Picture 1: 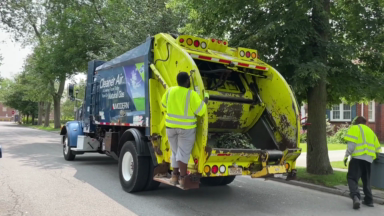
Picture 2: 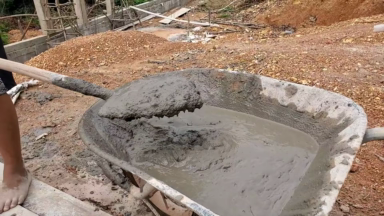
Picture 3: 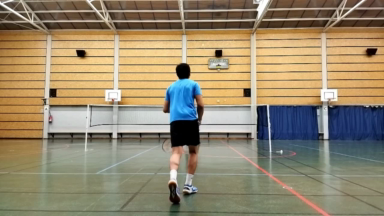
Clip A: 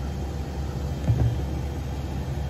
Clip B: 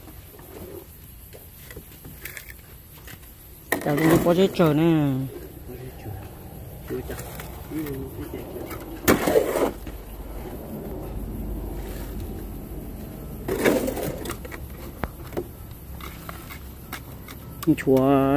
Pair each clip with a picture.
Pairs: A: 1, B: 2